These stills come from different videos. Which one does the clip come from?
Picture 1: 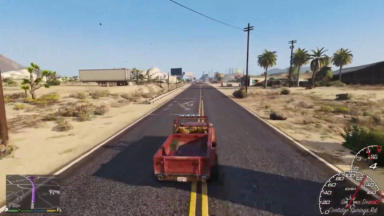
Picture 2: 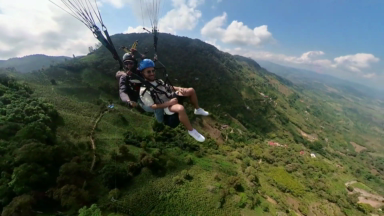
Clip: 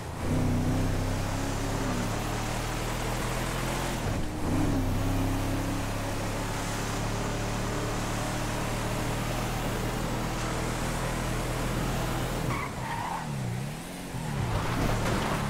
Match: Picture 1